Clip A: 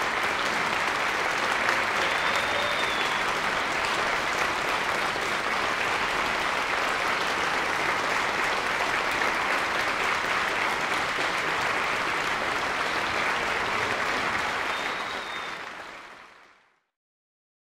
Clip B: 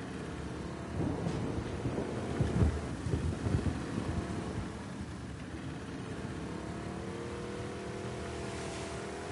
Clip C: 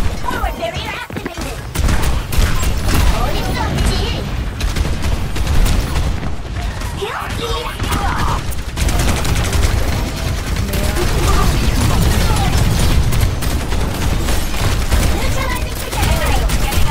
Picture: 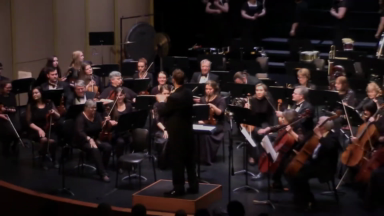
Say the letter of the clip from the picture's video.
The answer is A